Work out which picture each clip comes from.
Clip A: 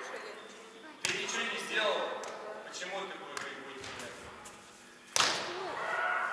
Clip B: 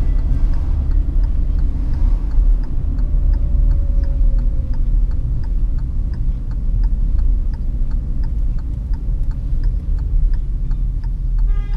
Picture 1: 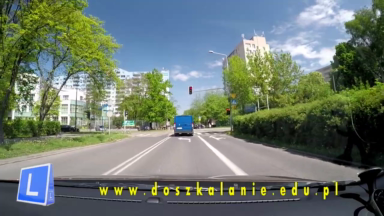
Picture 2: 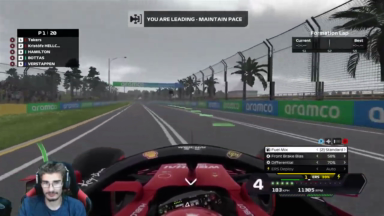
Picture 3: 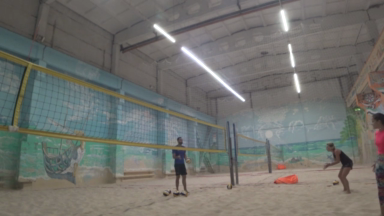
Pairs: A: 3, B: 1